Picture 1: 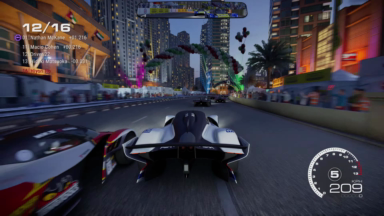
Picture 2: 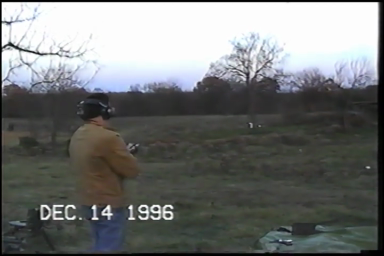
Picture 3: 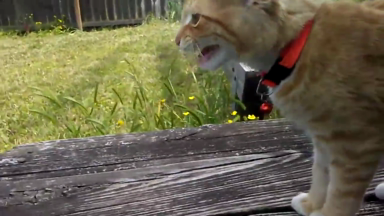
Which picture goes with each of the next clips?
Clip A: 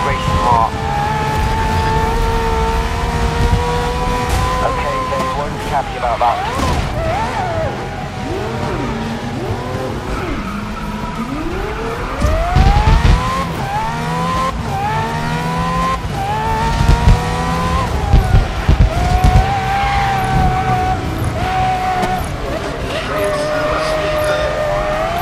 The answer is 1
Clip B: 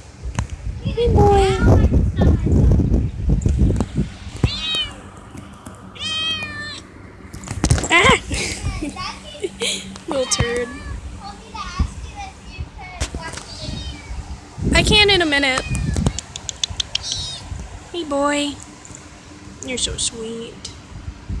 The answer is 3